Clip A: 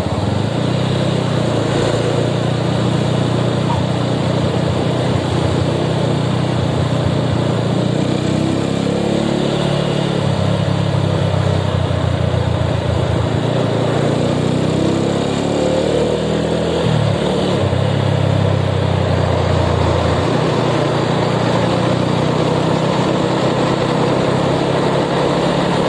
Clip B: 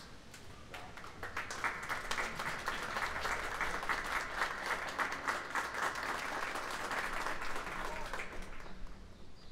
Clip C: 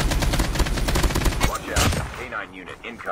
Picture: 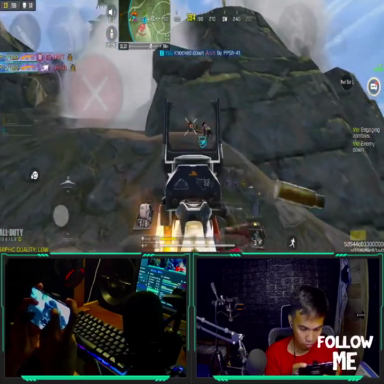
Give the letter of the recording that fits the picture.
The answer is C